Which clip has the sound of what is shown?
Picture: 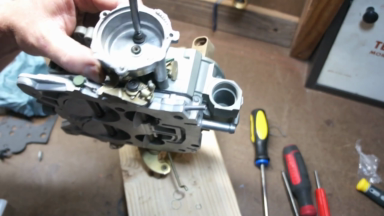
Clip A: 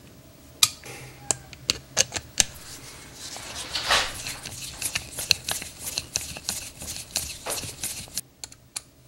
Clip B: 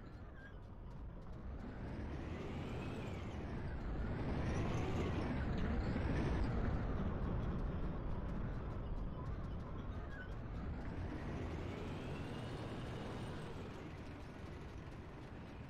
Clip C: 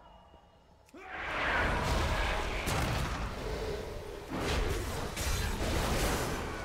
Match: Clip A